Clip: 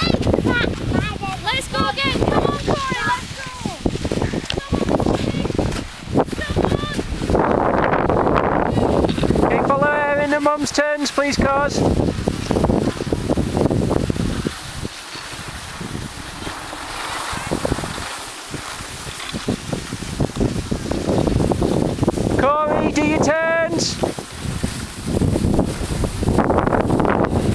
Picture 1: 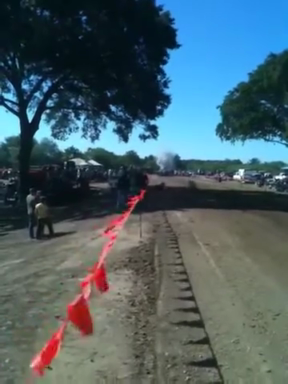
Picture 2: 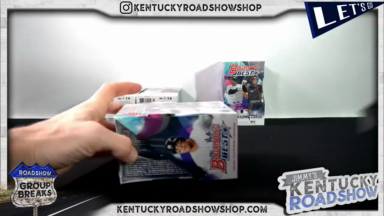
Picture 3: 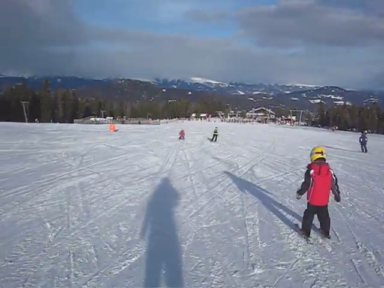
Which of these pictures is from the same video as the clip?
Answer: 3